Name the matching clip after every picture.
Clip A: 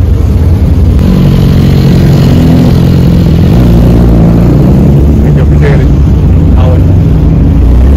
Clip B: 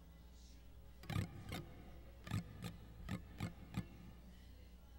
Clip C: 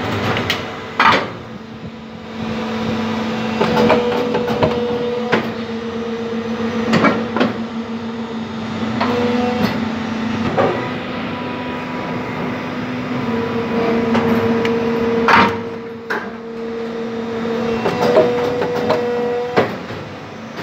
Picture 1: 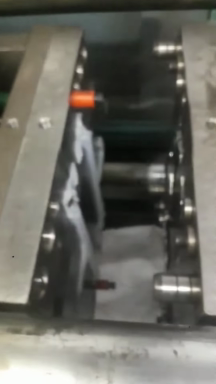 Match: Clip C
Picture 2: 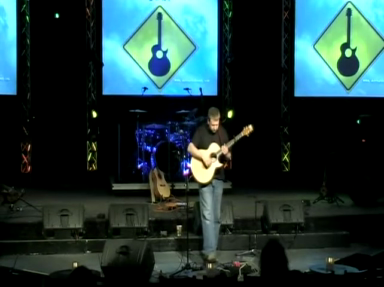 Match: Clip B